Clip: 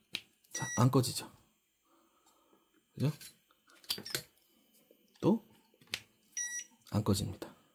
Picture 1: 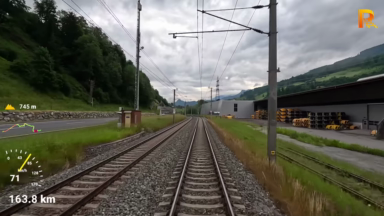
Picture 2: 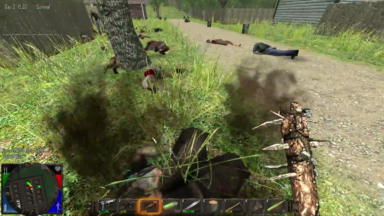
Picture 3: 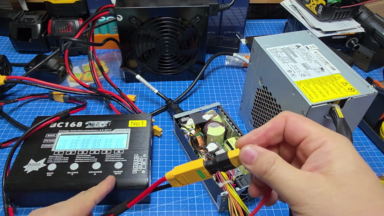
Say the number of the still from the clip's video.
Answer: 3